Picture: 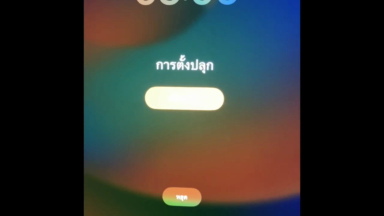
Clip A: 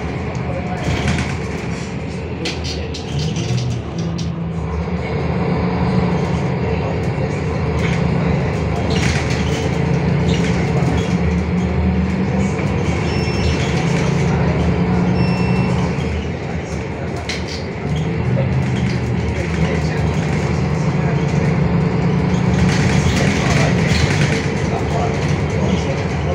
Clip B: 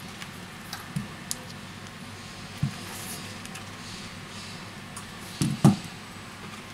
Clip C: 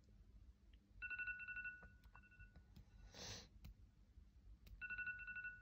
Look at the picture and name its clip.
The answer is C